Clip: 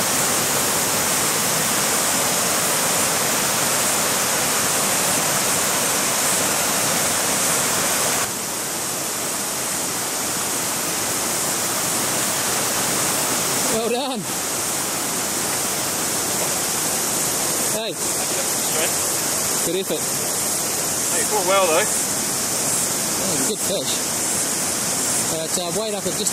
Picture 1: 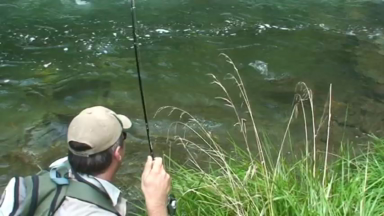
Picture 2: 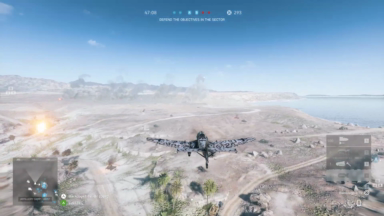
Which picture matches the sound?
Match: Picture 1